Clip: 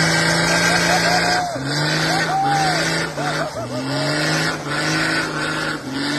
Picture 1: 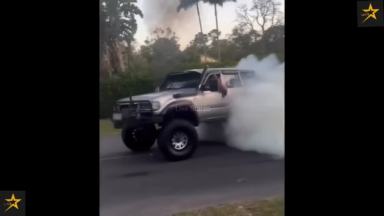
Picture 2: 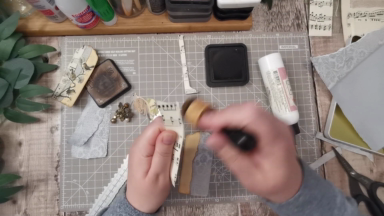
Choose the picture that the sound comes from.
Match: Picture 1